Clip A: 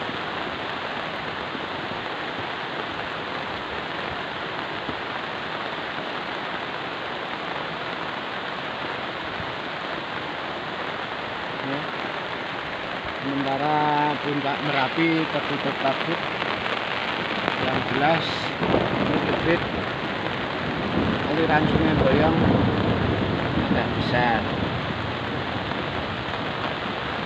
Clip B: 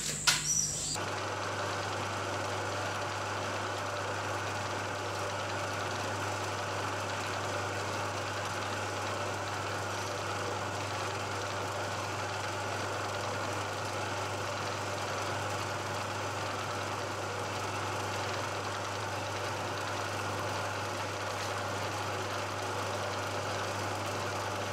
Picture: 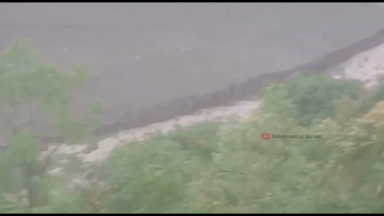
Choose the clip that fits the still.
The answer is A